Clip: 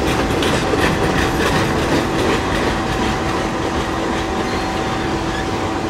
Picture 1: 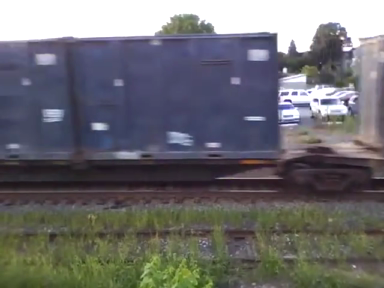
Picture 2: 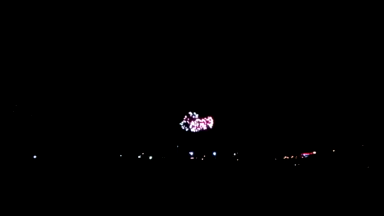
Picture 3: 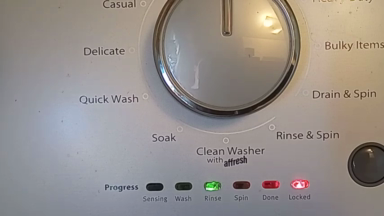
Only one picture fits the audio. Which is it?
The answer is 1